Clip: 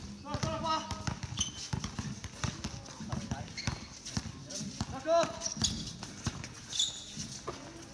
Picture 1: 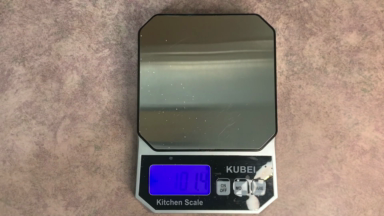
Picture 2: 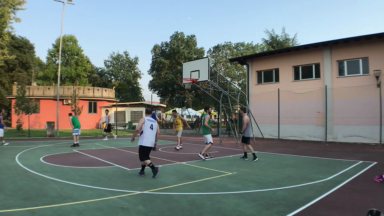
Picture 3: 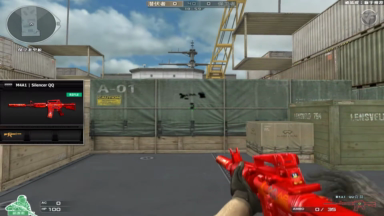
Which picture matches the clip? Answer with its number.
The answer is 2